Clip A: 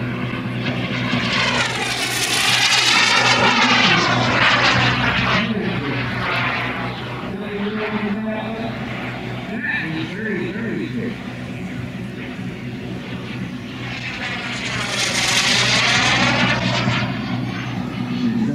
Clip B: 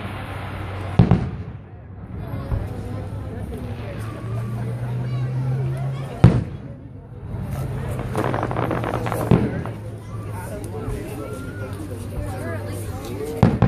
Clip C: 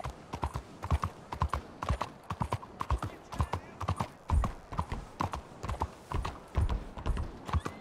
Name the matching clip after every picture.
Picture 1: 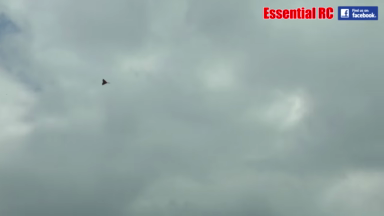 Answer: A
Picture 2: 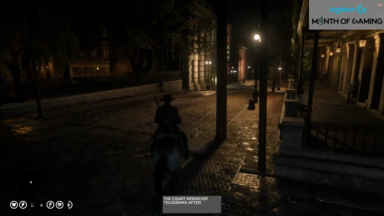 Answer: C